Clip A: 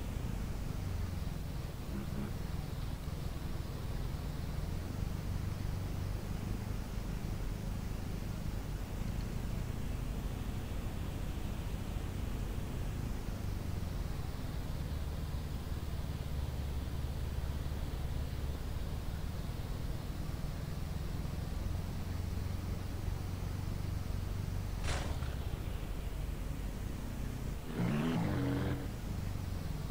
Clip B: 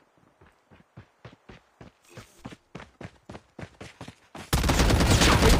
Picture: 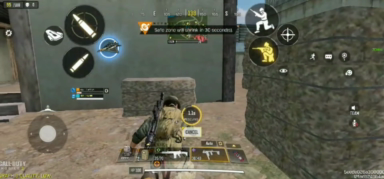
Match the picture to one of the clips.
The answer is B